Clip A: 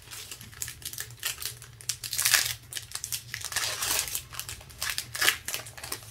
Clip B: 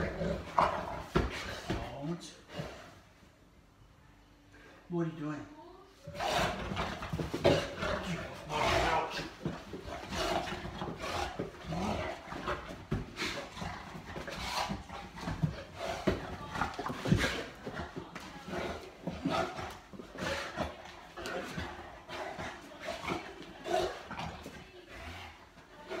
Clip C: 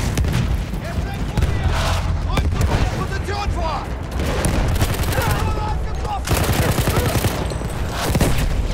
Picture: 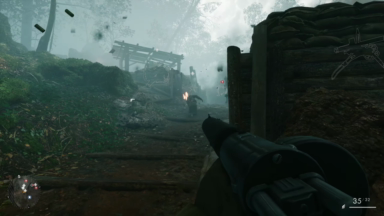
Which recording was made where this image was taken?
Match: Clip C